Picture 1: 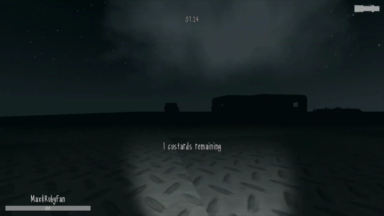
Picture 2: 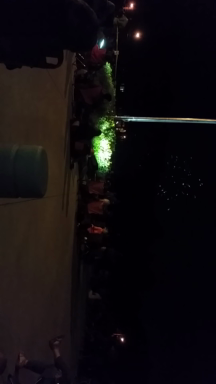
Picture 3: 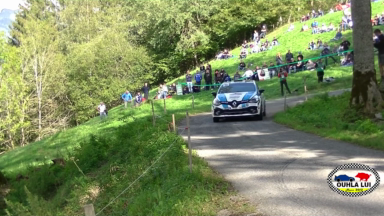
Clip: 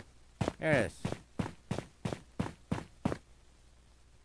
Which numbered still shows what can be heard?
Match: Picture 1